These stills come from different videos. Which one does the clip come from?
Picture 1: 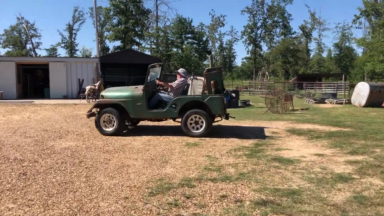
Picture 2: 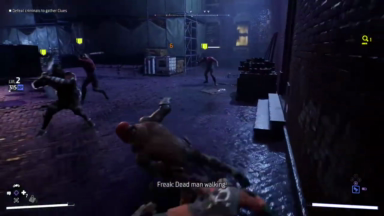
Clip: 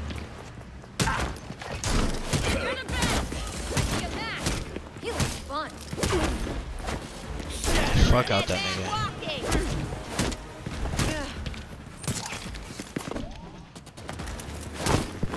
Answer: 2